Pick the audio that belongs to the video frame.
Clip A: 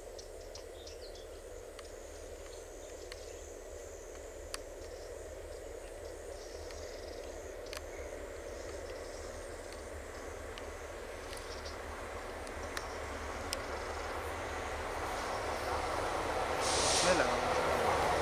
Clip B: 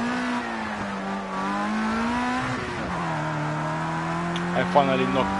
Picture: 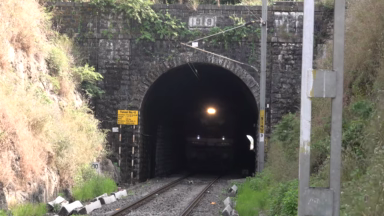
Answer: A